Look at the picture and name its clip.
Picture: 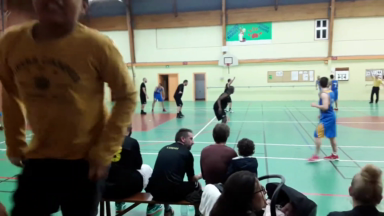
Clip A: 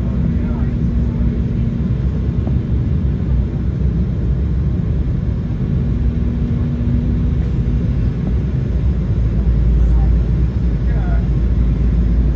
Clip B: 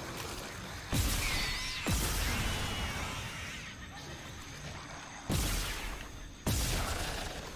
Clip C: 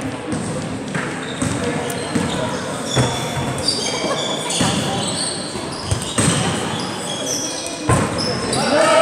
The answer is C